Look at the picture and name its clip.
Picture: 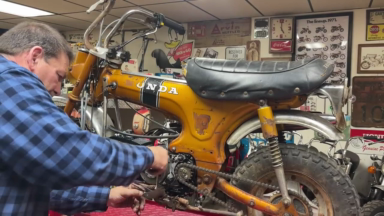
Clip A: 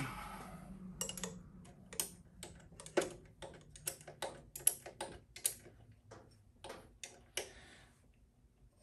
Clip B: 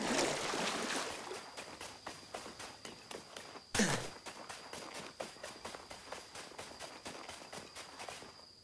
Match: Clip A